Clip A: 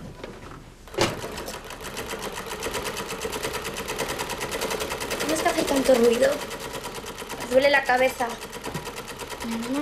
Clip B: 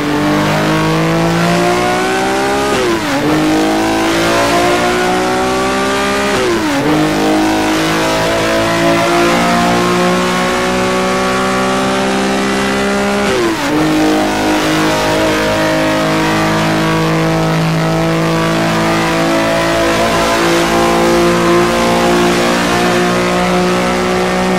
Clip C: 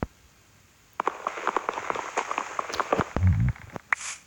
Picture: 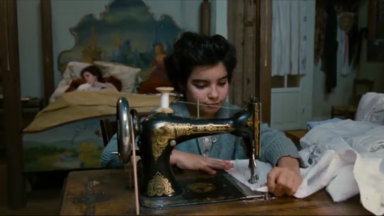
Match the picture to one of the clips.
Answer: A